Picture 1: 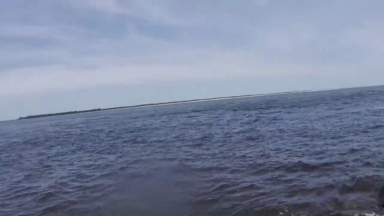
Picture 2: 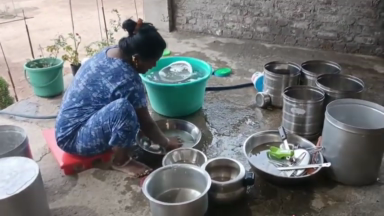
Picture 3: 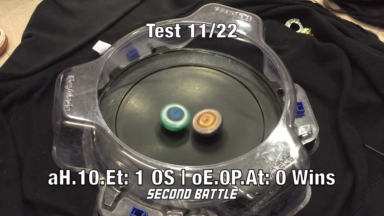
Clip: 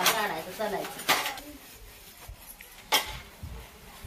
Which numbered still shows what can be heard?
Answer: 2